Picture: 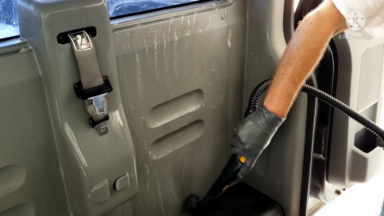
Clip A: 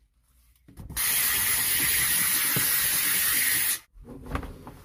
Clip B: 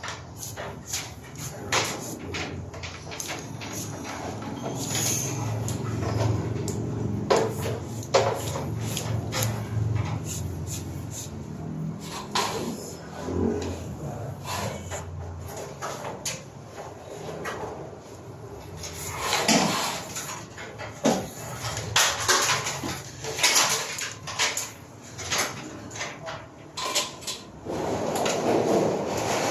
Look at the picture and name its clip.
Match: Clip A